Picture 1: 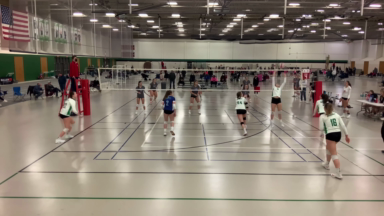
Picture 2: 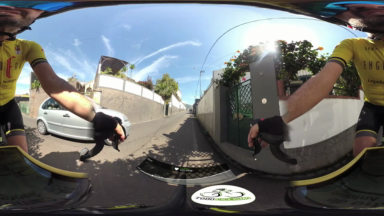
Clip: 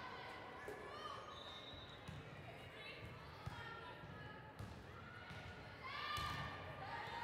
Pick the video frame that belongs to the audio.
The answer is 1